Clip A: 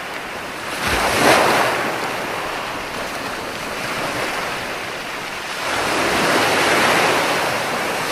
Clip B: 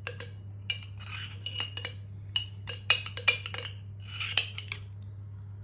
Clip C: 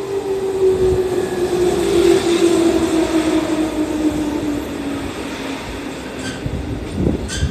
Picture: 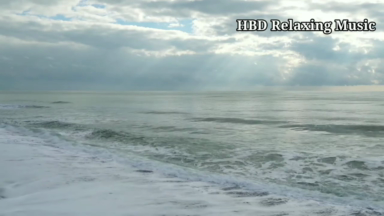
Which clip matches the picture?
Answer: A